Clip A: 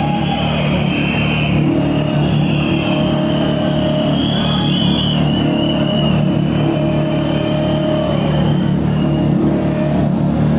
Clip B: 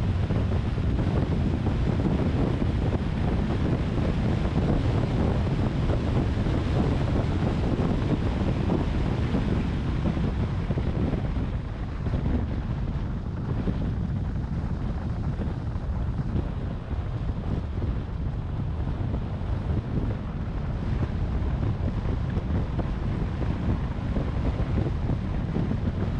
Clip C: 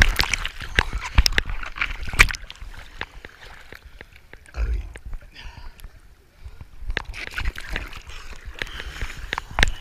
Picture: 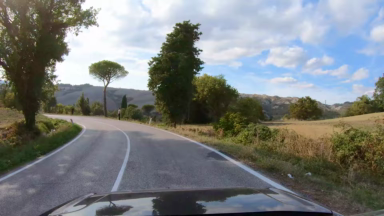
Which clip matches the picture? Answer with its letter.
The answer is B